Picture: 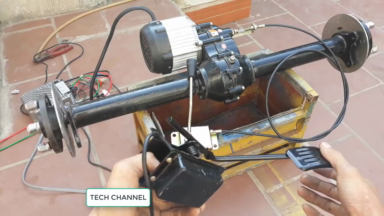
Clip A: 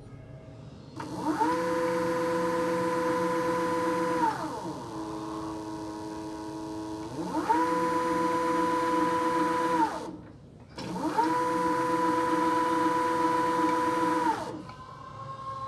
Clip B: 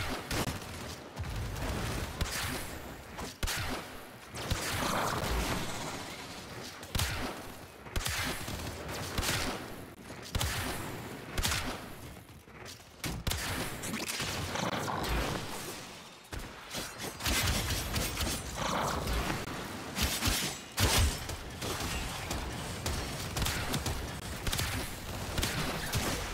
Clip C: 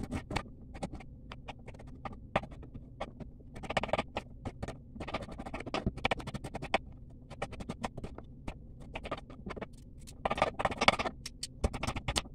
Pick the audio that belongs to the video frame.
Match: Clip A